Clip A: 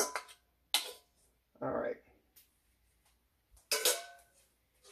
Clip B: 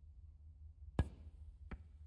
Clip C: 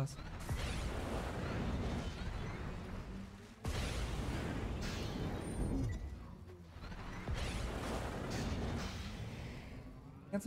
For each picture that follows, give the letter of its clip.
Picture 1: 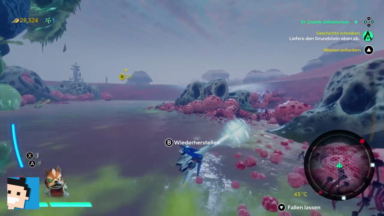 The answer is C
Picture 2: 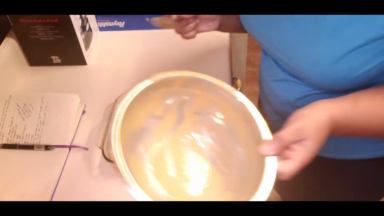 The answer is A